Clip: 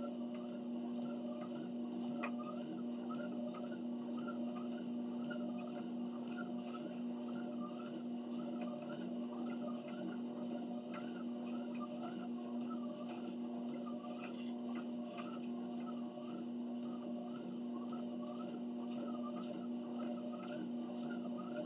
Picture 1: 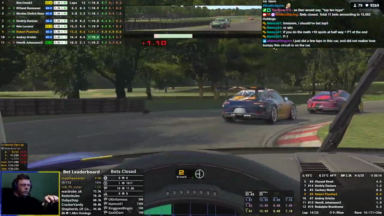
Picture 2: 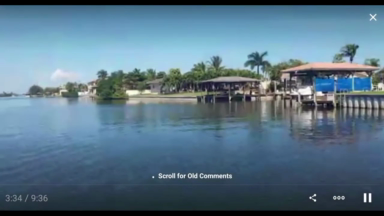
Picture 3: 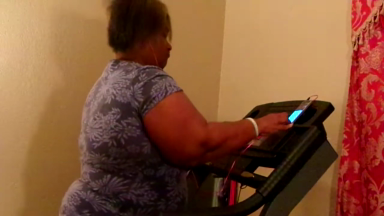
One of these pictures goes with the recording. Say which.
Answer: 3